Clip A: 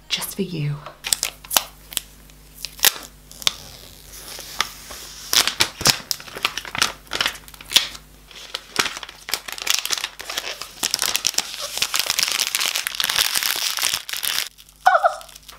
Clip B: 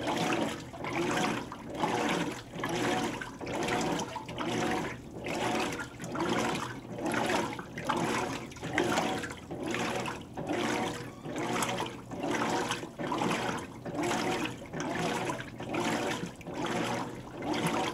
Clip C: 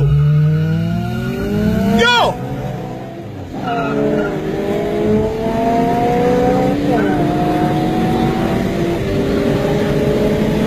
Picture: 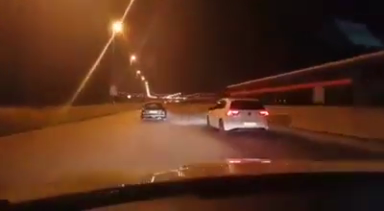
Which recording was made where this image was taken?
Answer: C